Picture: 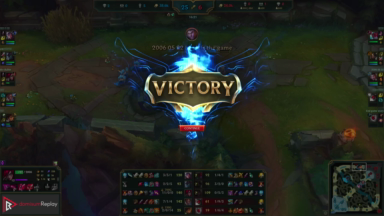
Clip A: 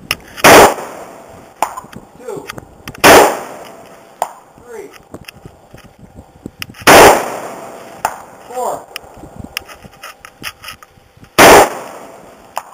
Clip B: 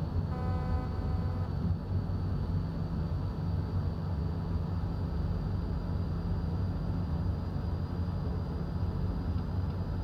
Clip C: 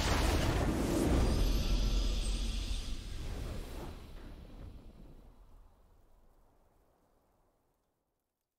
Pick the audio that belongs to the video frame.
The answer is C